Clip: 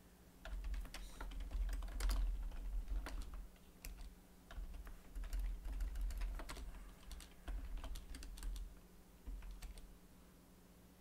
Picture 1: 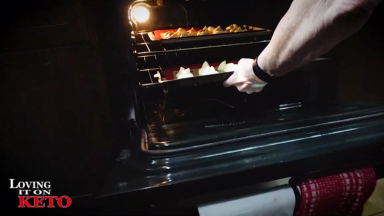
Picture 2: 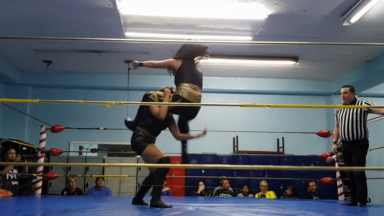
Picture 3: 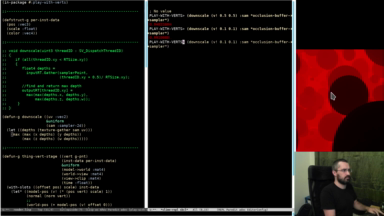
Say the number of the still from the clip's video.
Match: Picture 3